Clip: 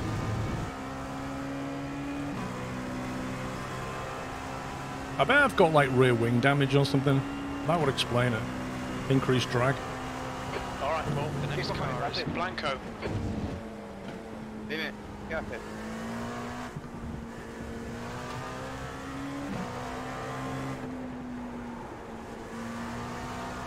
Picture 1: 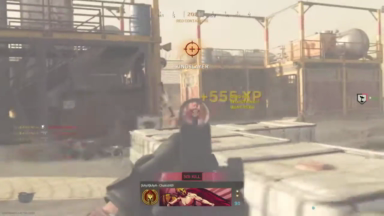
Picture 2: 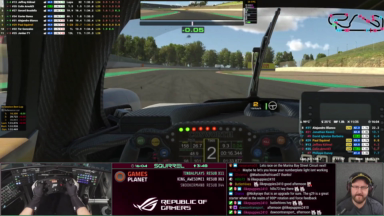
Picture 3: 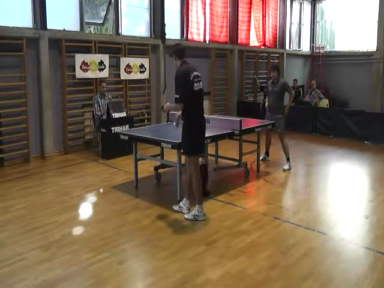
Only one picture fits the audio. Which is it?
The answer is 2